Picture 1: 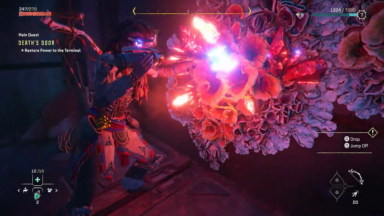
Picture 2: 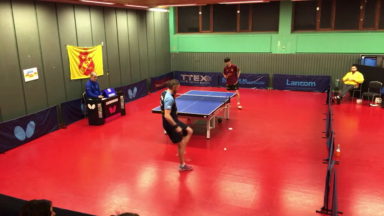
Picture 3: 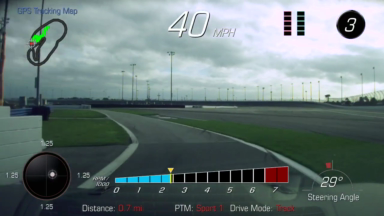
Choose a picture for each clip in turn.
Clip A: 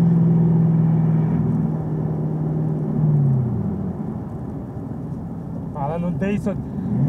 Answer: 3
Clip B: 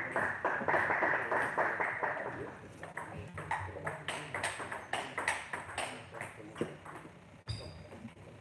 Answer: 2